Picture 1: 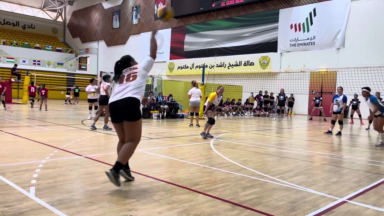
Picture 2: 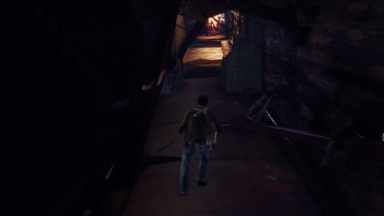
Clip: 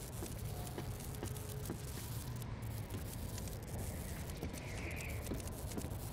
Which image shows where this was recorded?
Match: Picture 2